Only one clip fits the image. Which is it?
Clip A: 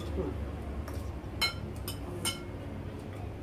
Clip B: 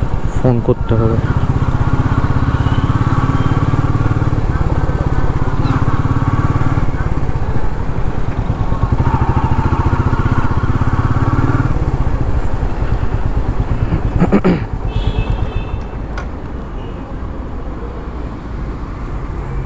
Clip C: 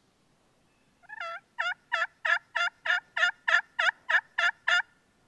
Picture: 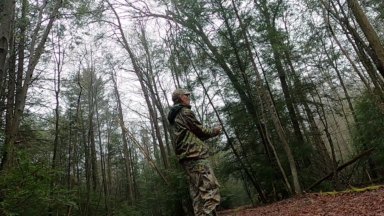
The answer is C